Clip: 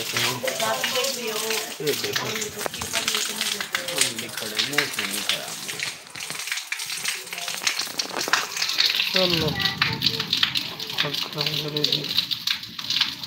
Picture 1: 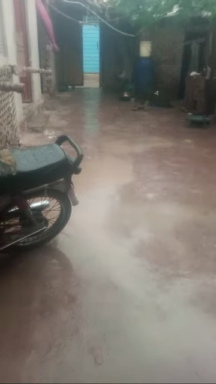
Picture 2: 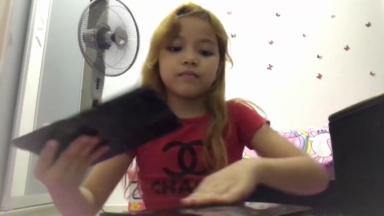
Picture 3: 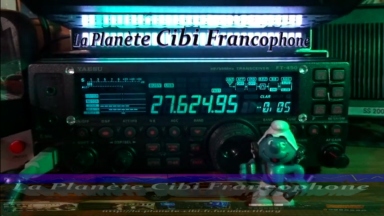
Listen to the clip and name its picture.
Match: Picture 1